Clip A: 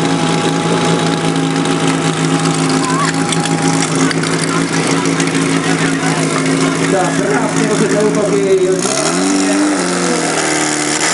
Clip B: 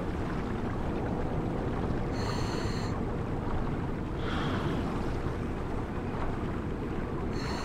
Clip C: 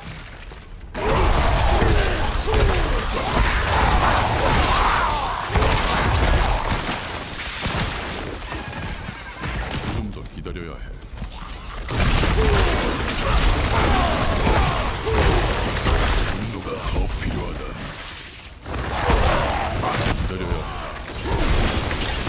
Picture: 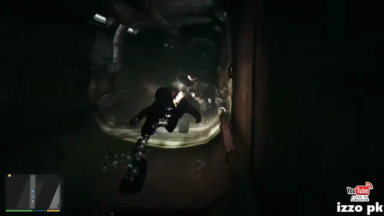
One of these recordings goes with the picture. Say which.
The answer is B